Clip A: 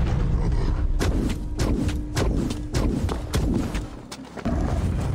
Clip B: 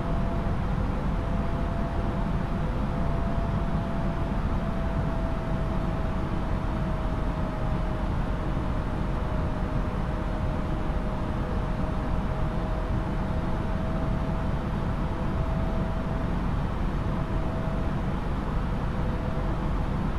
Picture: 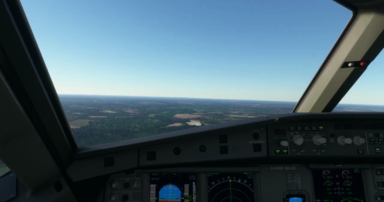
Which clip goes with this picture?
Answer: B